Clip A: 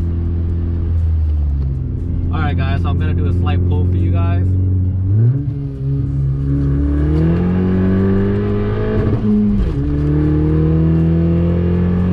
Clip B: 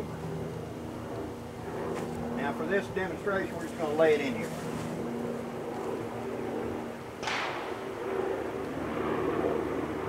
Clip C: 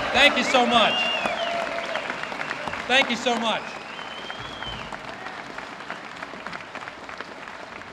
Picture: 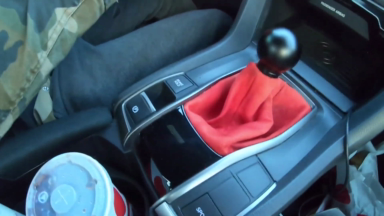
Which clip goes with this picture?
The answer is A